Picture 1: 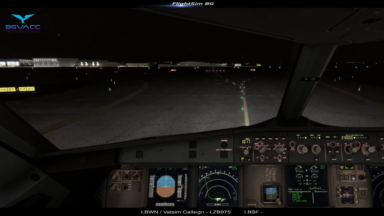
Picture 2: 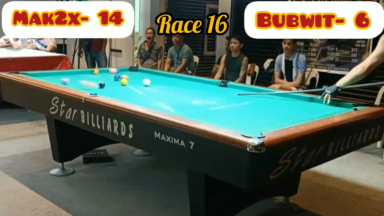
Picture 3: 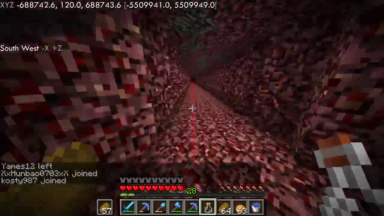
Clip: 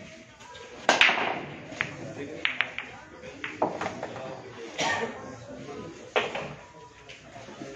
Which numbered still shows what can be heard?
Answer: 2